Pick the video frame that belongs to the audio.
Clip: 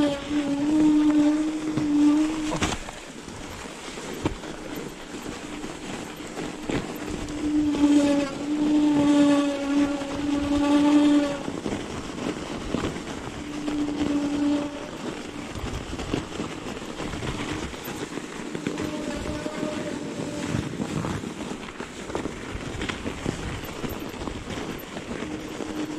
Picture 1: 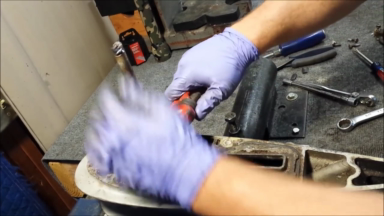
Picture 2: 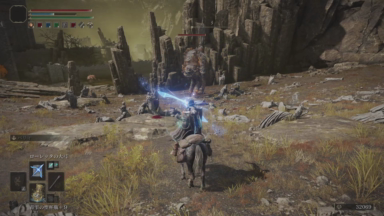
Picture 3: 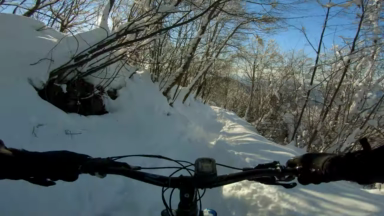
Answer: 3